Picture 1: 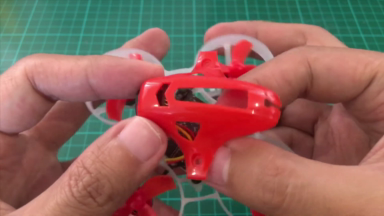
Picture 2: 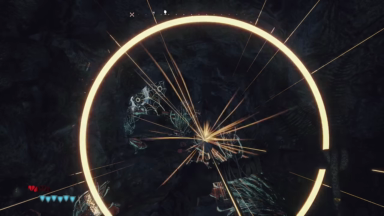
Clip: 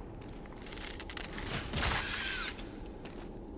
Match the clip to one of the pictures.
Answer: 2